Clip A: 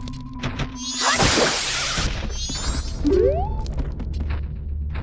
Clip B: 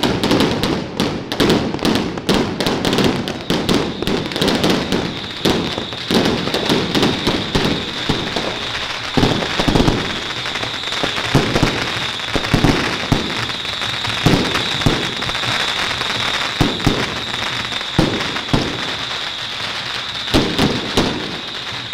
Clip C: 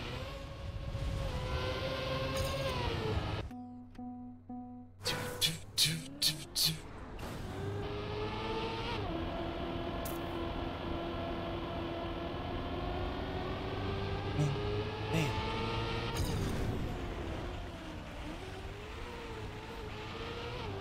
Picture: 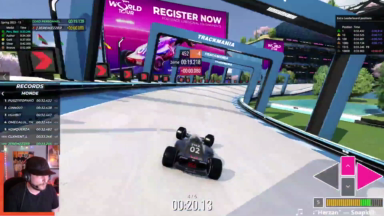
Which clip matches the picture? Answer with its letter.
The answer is C